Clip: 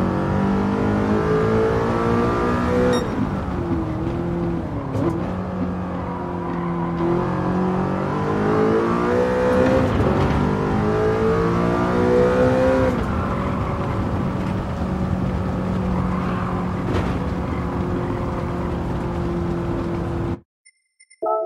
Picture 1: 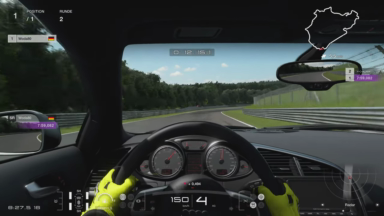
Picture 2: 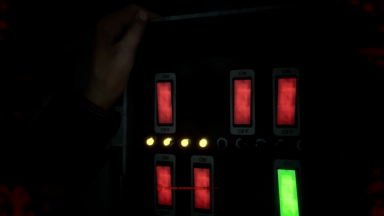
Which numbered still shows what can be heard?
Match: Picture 1